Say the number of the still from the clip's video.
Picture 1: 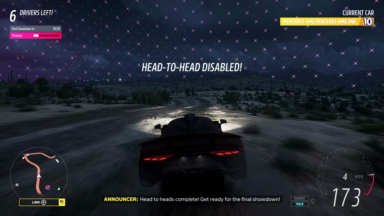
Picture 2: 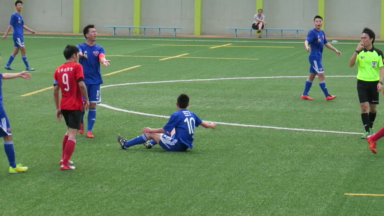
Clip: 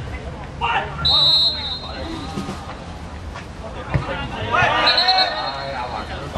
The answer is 2